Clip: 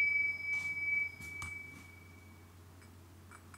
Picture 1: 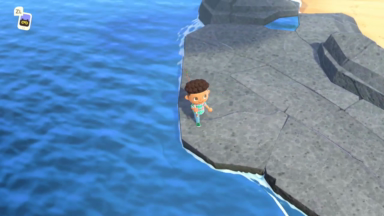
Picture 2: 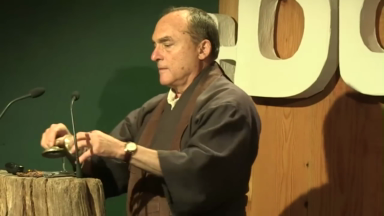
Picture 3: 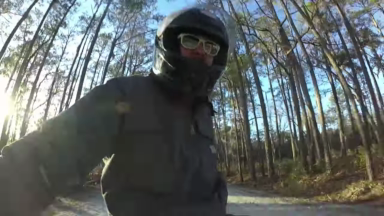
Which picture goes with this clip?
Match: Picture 2